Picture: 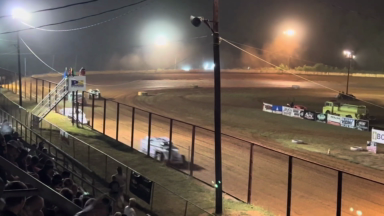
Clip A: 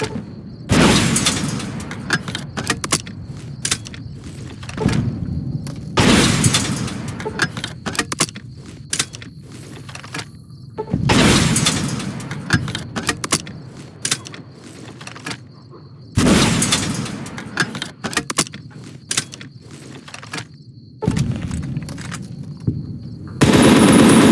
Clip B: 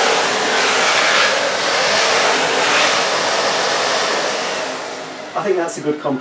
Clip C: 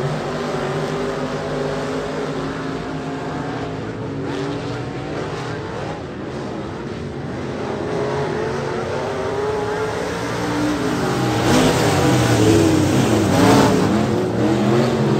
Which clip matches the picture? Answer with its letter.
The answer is C